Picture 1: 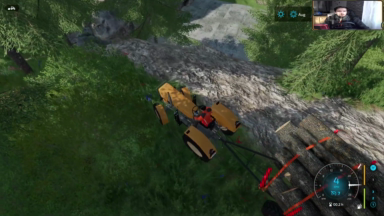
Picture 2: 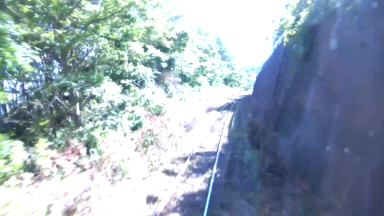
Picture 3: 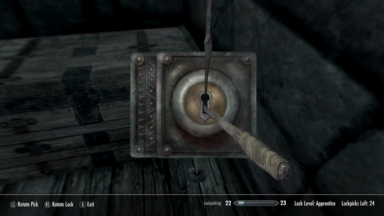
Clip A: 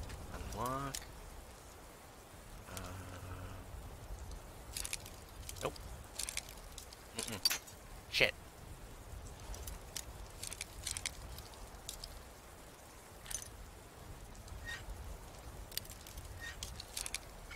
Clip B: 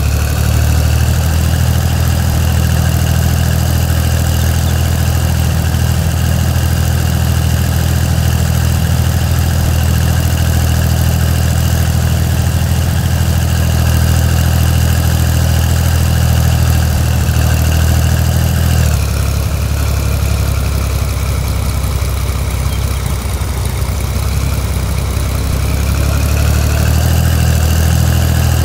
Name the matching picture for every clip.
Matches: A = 3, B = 1